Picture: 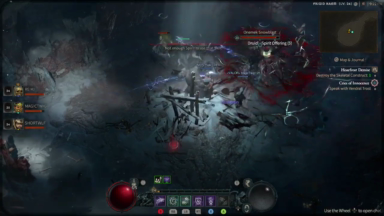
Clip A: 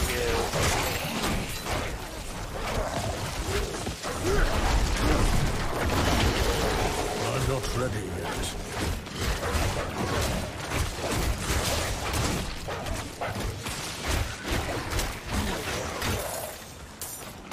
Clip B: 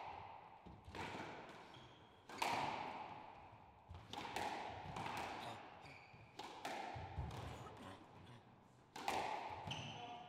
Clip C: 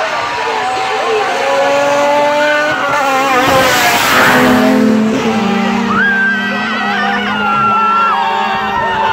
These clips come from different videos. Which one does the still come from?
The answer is A